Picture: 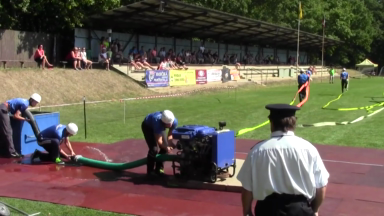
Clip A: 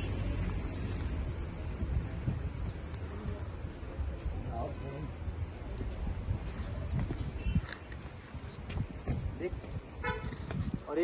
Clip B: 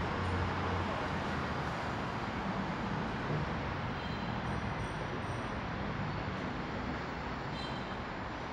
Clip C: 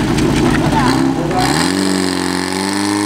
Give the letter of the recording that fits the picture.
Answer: C